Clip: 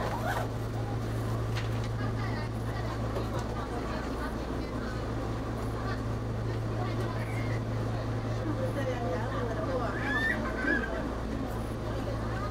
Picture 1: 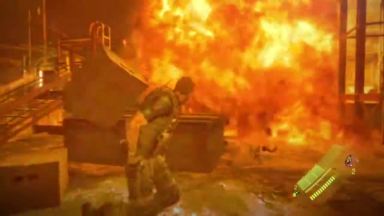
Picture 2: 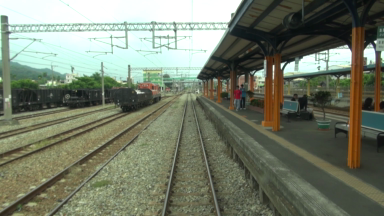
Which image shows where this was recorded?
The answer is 2